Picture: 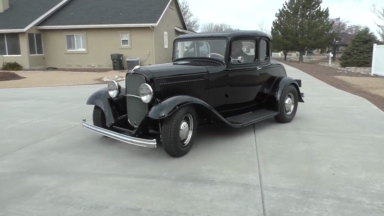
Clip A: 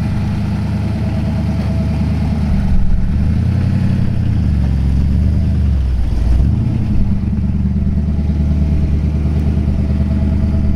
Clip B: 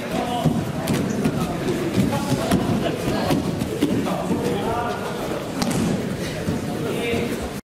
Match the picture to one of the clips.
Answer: A